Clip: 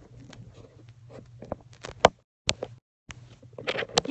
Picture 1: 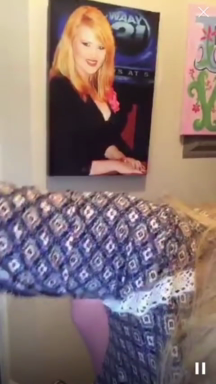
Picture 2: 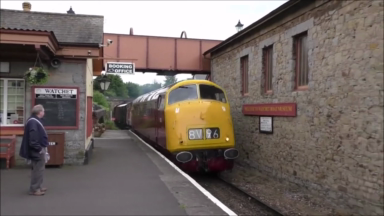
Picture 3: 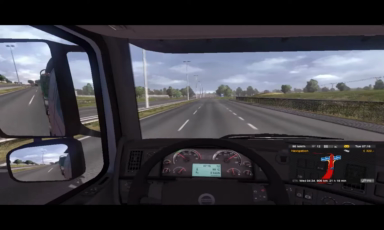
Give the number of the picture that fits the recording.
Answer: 1